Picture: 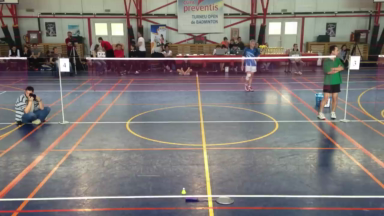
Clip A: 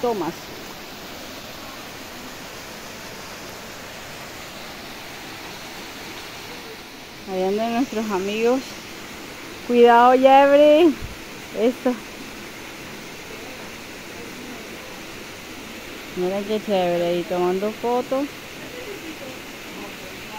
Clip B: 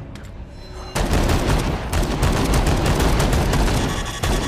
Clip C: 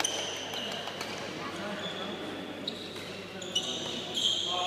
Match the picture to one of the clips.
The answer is C